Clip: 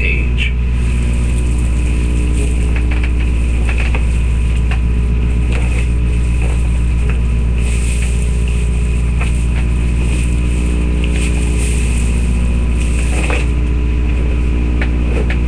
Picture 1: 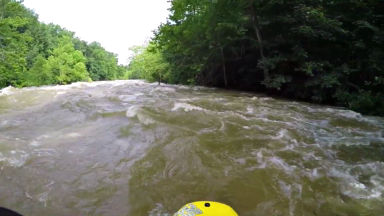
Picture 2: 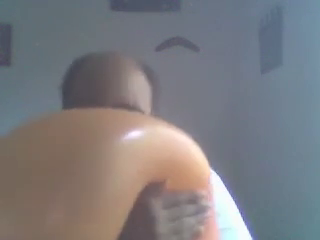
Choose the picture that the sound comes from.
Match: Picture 2